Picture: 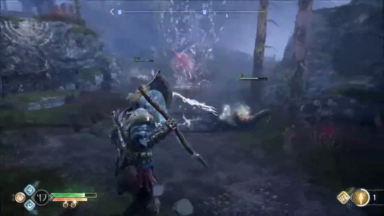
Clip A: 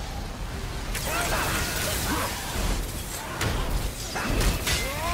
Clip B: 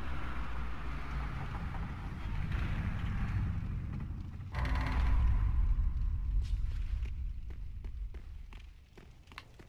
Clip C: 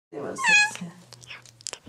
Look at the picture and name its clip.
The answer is A